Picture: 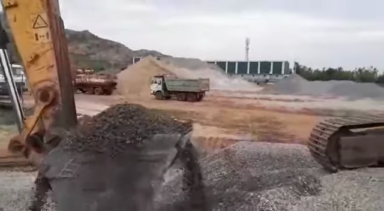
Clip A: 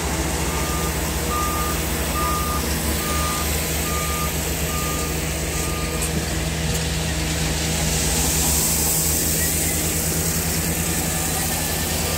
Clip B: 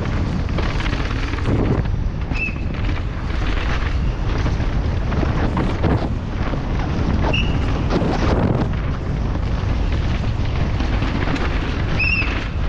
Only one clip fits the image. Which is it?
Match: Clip A